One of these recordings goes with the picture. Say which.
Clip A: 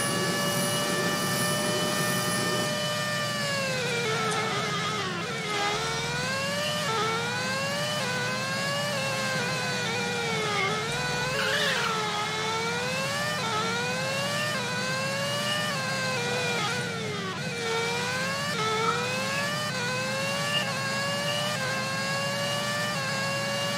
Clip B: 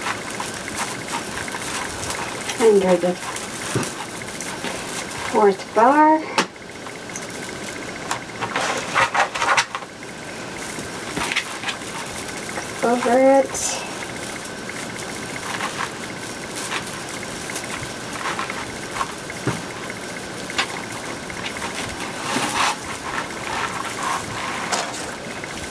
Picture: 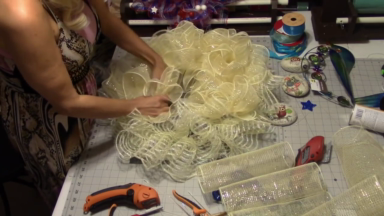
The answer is B